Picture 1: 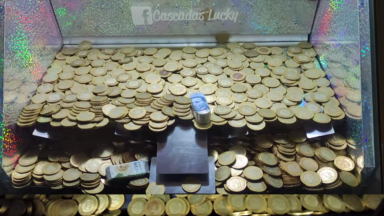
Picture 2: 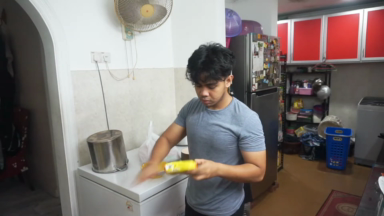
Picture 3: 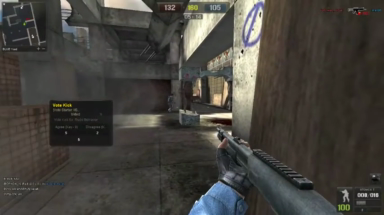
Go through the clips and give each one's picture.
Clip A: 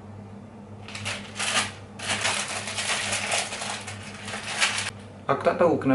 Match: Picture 2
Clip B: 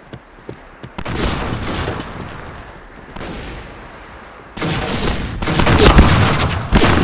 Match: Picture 3